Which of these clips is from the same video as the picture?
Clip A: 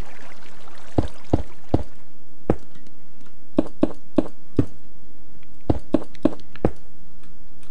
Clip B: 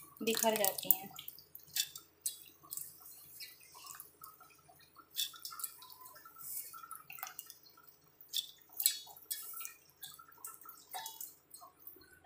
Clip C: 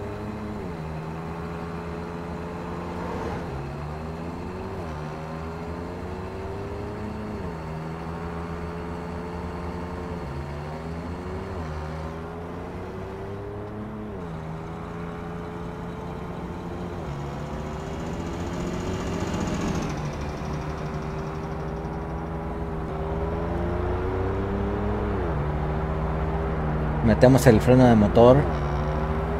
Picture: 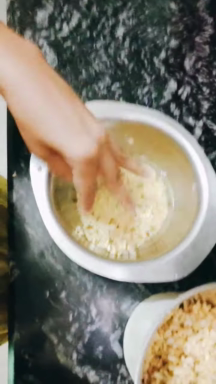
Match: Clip B